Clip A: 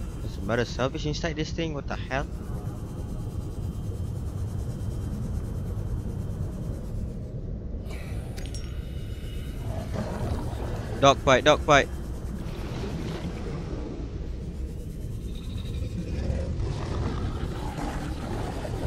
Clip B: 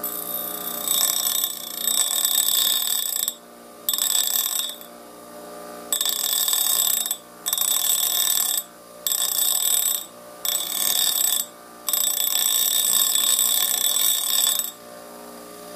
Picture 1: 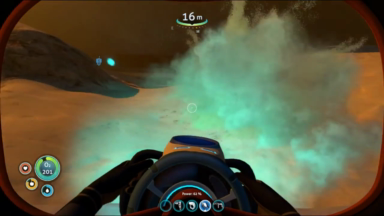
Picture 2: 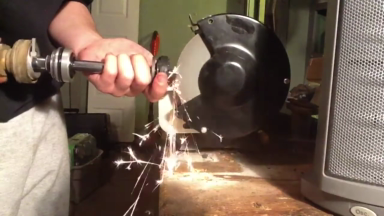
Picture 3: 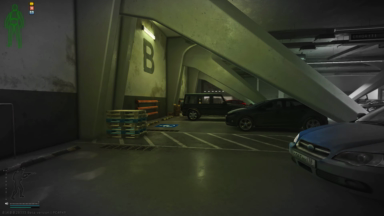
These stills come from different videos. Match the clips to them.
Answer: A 1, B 2